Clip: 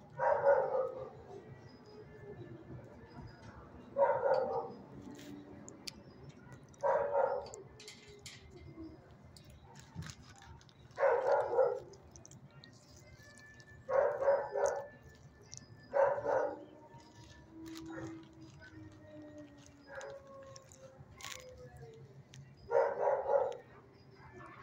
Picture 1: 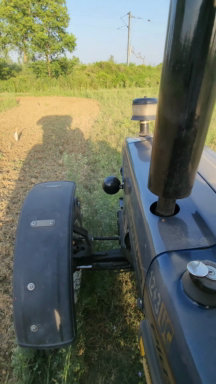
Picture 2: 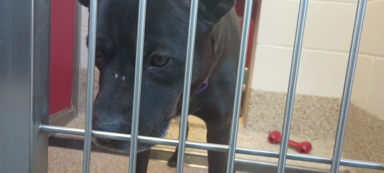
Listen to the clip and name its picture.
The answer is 2